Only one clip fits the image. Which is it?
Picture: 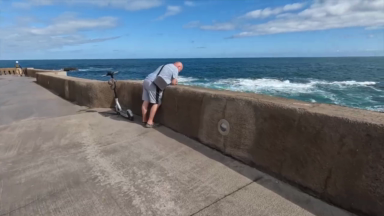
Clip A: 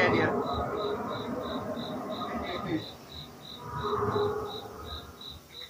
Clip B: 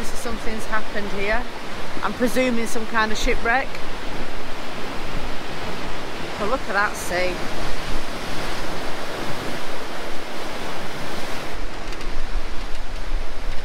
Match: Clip B